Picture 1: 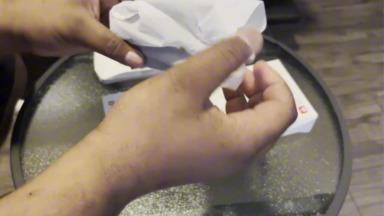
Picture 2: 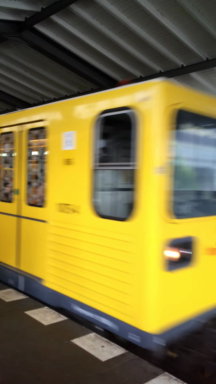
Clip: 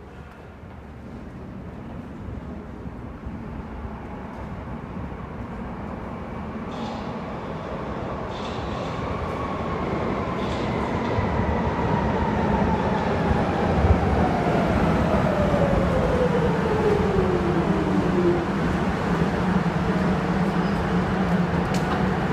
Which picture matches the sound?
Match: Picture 2